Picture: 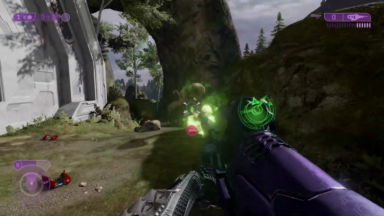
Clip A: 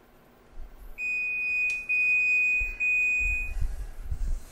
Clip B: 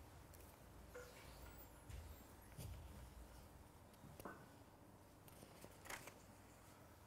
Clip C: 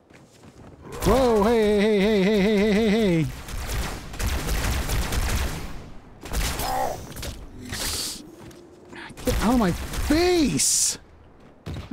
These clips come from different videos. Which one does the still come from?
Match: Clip C